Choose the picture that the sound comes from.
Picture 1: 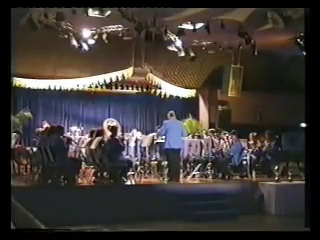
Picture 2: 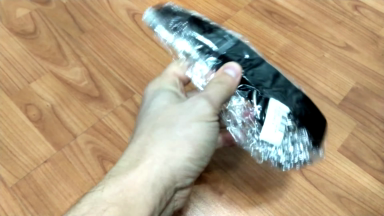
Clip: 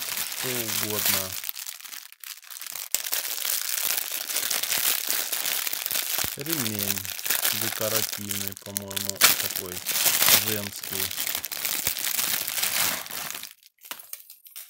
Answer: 2